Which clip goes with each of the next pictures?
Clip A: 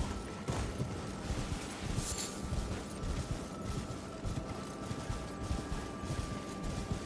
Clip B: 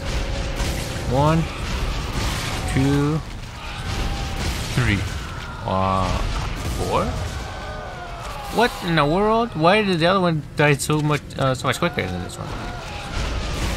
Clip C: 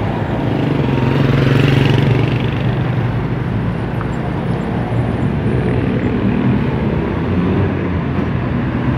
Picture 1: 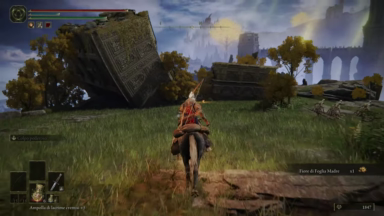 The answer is A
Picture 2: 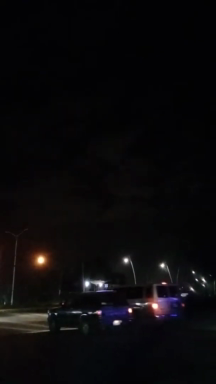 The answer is C